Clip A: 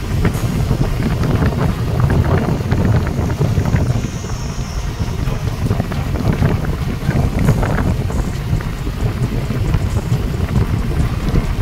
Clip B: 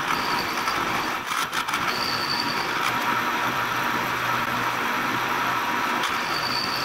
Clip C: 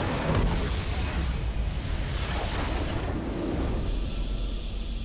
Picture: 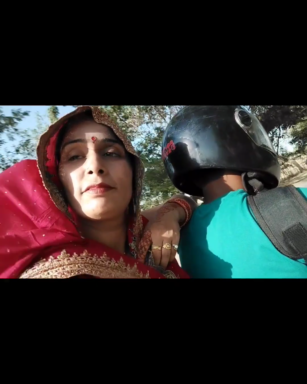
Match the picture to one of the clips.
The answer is A